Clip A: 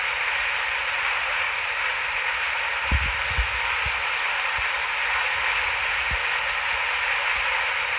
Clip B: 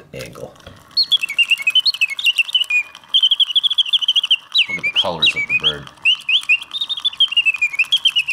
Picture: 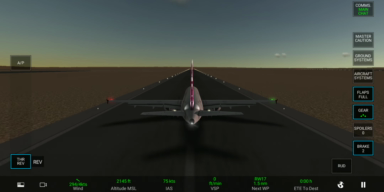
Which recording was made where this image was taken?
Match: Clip A